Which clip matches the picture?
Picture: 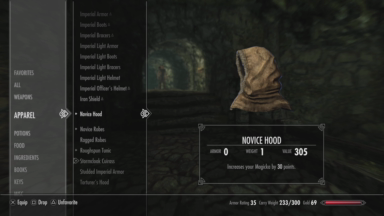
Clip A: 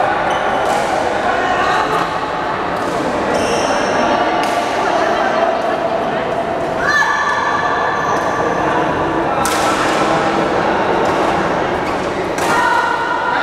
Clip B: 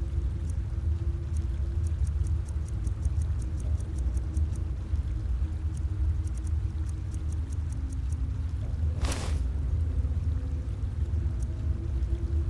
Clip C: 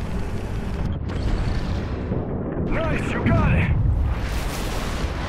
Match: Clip B